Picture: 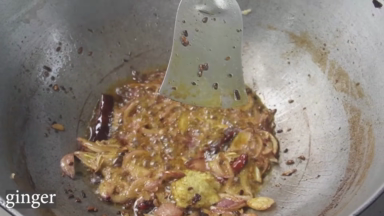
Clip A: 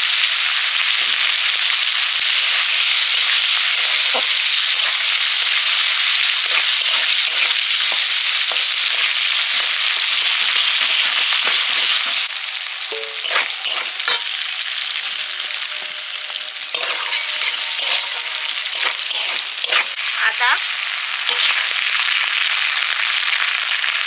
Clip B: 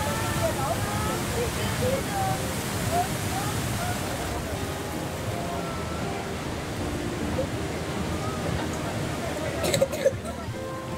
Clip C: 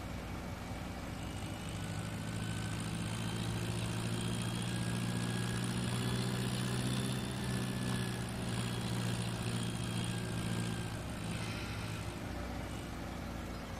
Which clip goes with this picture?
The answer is A